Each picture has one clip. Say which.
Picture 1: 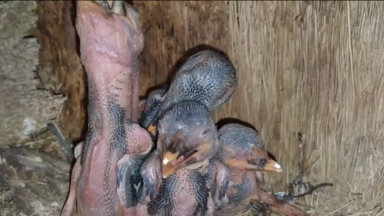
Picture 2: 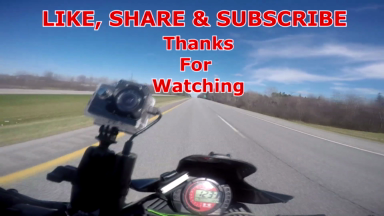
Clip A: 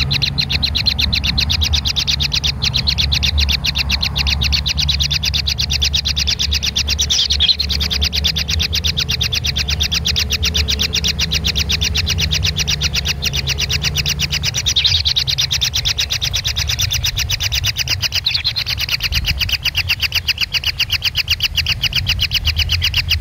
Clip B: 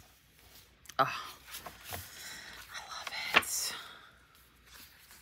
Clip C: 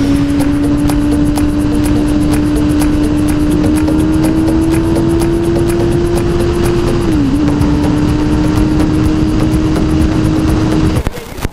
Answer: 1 A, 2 C